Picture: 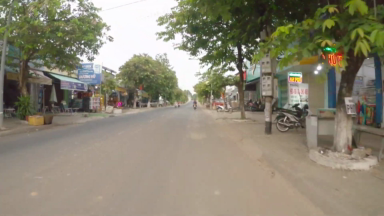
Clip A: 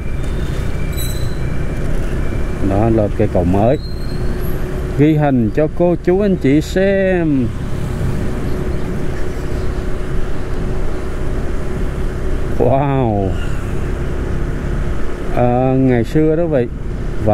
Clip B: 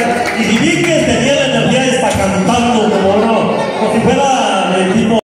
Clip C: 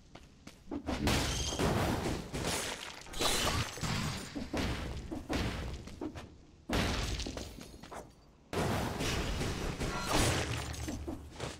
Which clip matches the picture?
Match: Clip A